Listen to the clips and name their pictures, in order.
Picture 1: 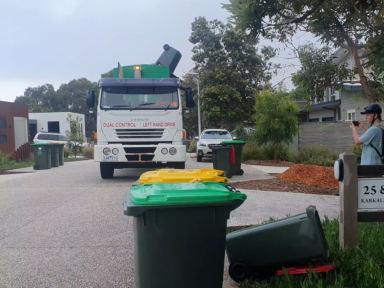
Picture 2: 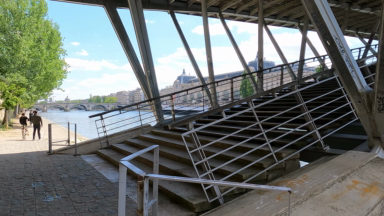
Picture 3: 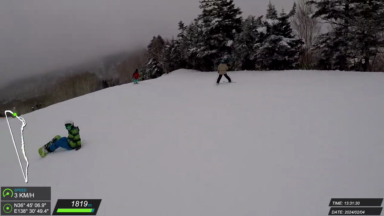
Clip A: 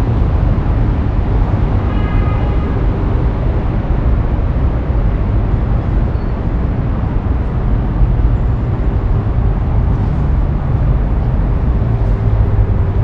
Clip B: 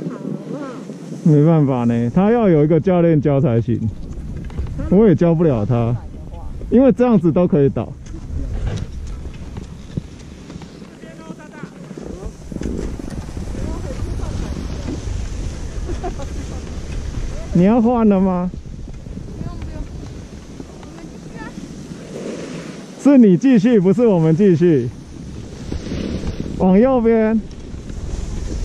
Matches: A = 2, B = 3